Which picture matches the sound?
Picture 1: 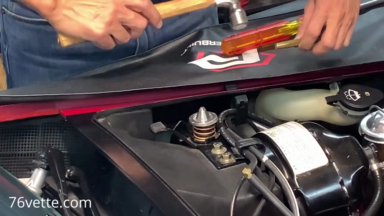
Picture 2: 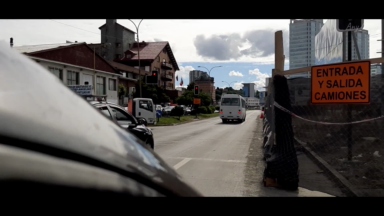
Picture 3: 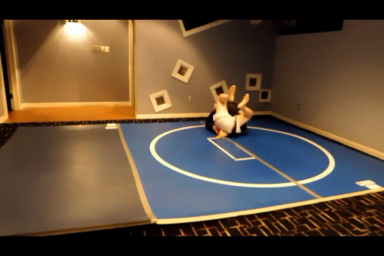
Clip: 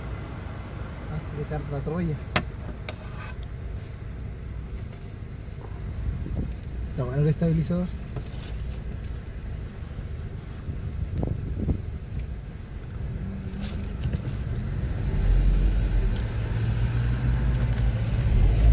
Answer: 2